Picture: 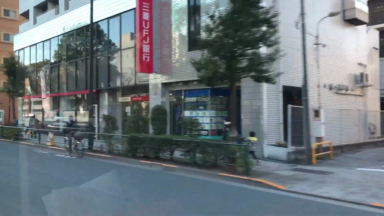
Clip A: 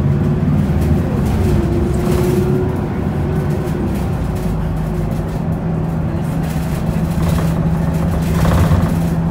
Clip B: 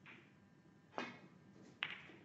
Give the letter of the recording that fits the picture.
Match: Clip A